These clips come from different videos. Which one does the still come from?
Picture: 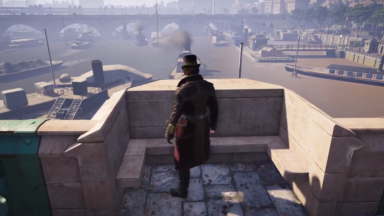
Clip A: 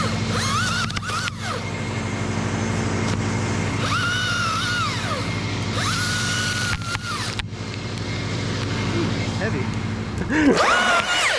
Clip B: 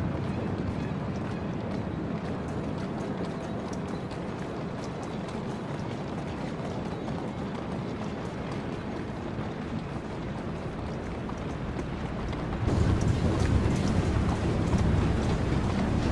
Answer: B